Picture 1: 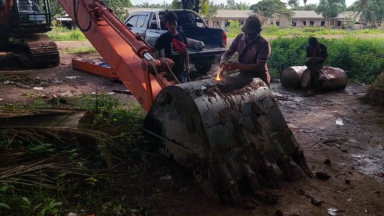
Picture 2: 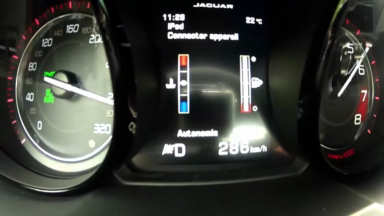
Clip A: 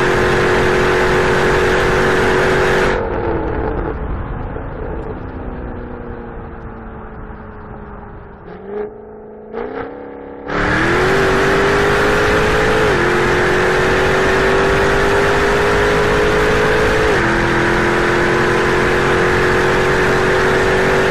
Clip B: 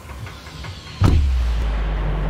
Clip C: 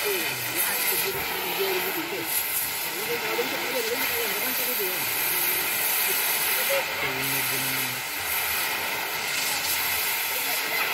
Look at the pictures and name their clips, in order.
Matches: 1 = C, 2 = A